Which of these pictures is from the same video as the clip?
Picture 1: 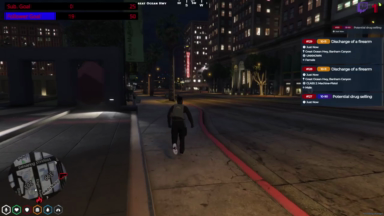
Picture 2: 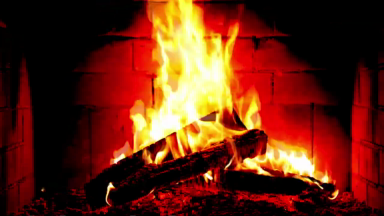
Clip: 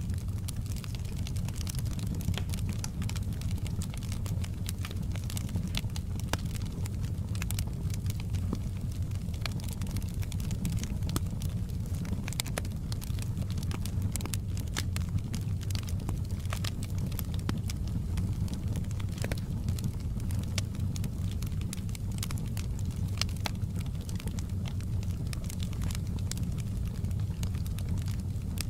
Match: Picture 2